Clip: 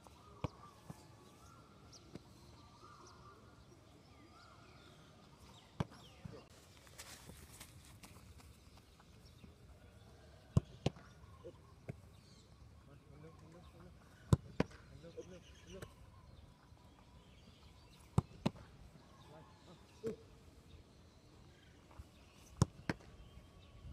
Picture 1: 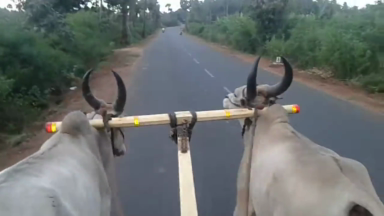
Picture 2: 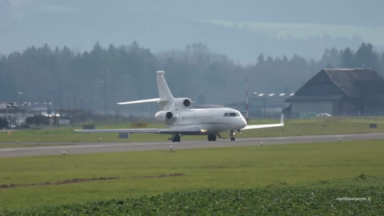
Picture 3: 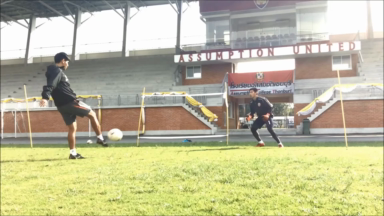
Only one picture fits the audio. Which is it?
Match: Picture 3